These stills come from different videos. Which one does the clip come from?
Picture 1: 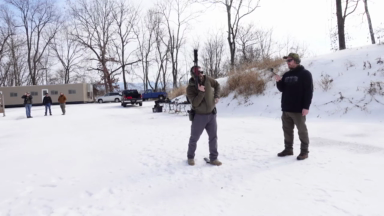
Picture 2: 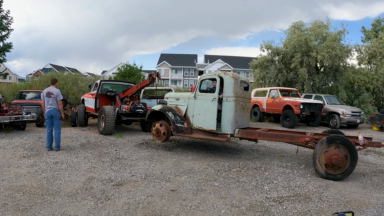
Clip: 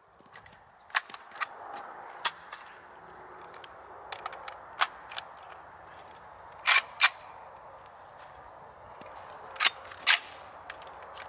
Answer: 1